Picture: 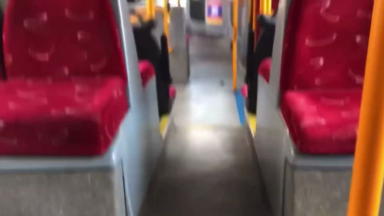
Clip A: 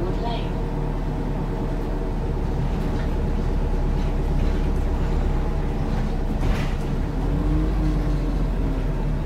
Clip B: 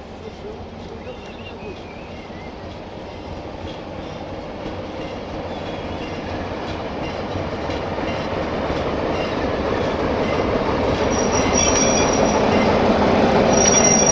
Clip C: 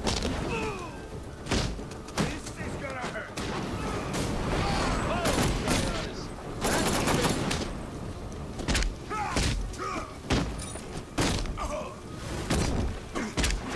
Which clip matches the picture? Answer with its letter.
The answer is A